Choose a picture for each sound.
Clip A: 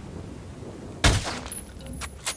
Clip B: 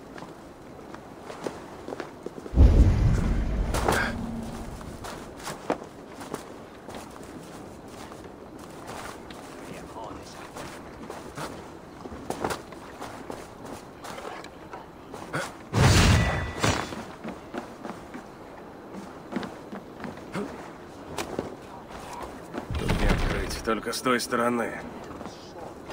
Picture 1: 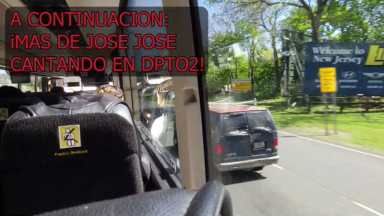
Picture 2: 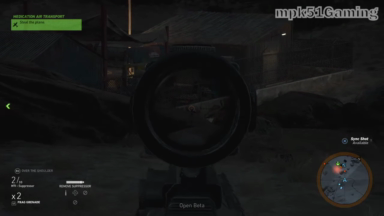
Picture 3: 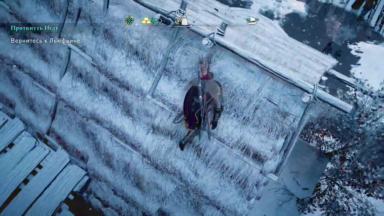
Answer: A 2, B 3